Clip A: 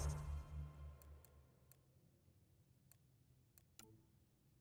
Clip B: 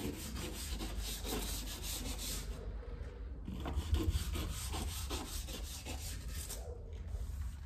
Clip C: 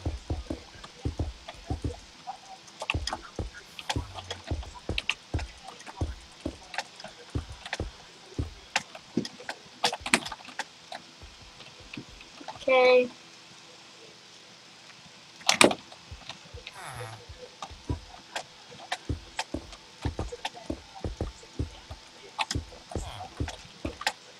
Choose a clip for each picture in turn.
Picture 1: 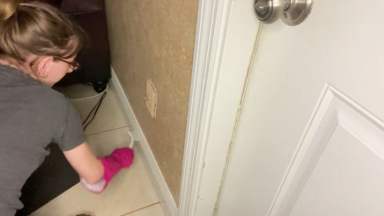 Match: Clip B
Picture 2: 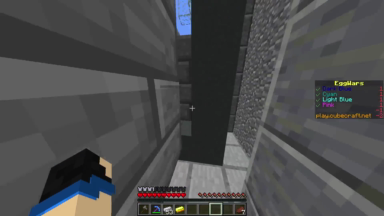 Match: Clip C